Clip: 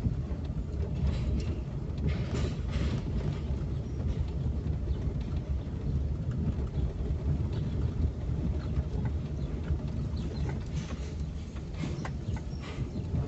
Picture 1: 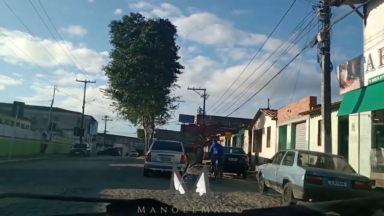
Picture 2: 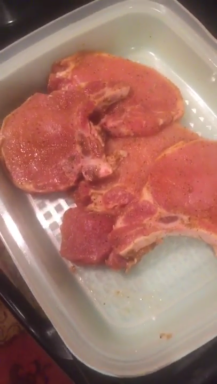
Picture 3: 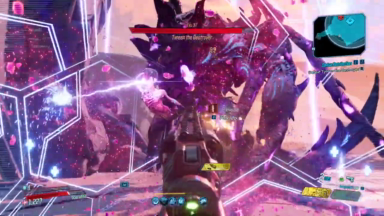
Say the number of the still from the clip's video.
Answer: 1